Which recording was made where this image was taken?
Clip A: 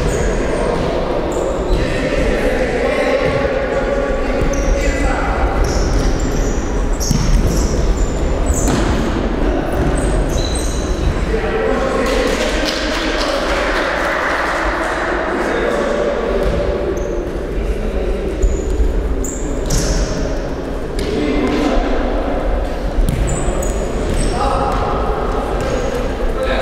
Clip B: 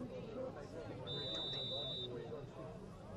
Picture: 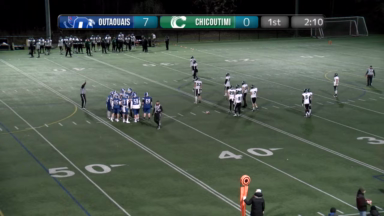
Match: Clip B